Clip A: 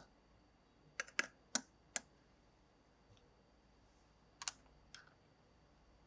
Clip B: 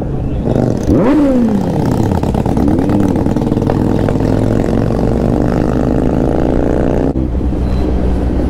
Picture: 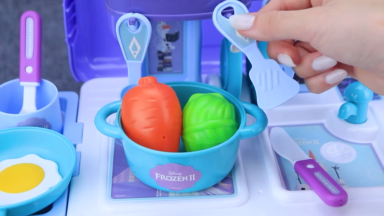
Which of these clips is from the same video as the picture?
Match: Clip A